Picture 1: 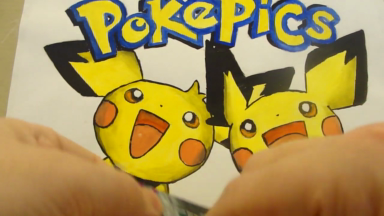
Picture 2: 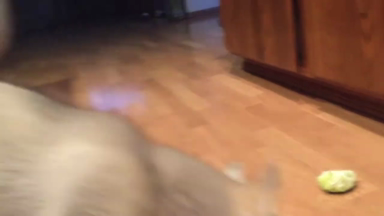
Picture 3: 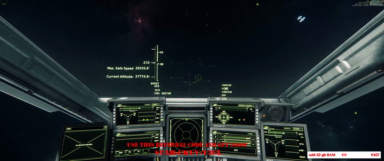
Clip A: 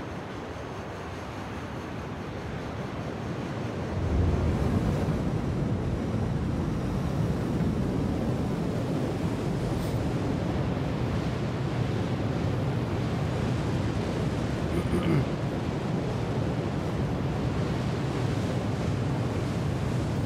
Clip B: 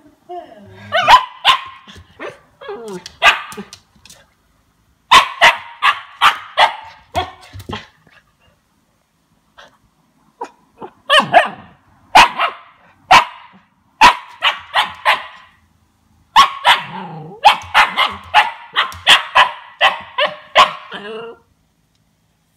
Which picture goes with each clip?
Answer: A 3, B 2